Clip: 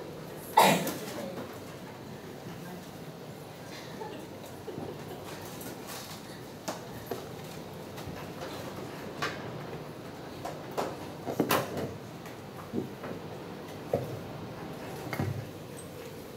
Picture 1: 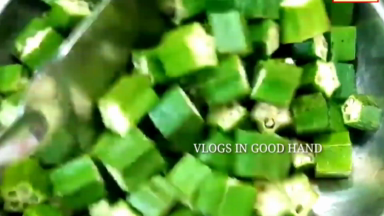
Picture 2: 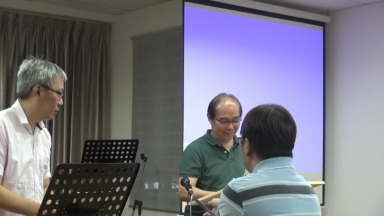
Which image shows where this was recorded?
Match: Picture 2